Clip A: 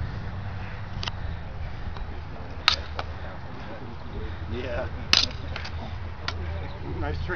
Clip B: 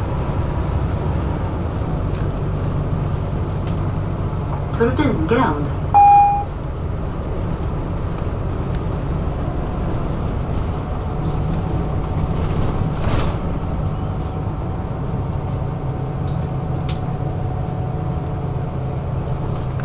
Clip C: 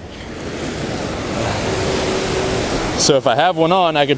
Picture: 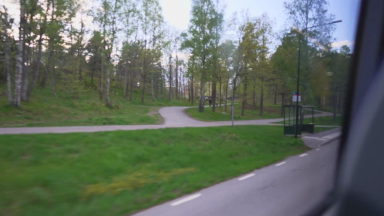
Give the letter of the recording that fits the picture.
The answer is B